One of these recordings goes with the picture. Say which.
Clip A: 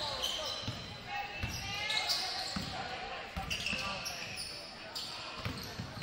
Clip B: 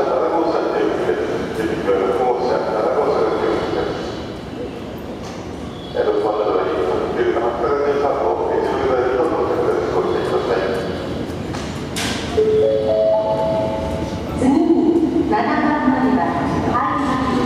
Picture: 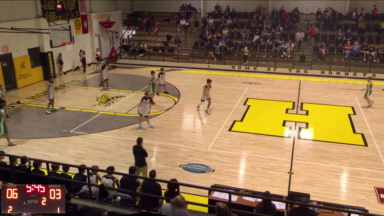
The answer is A